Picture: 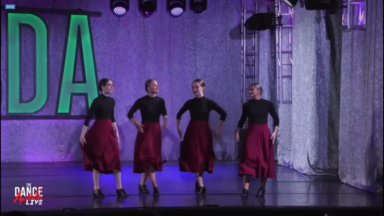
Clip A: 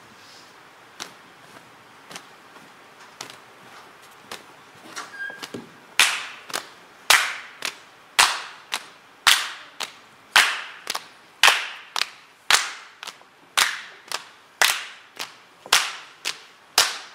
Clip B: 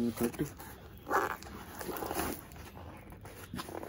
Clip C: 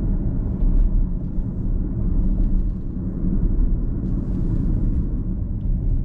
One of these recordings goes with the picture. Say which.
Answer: A